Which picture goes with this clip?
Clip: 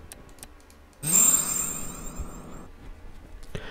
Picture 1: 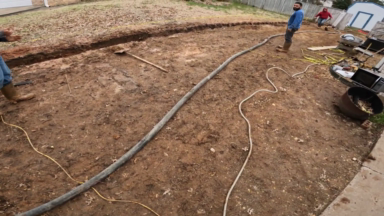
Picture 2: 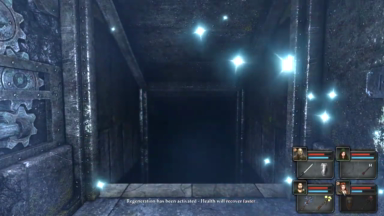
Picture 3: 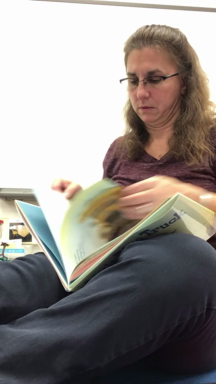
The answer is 2